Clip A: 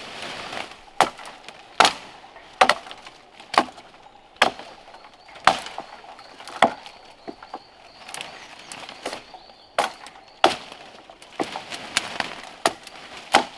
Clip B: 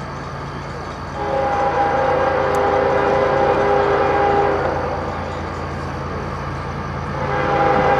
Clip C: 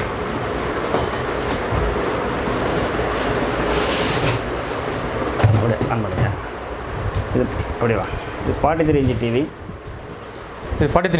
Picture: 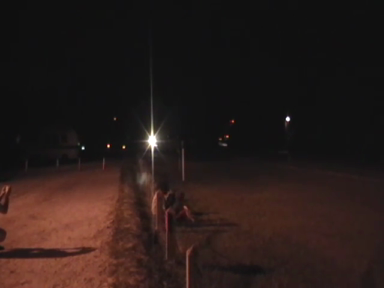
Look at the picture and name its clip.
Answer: B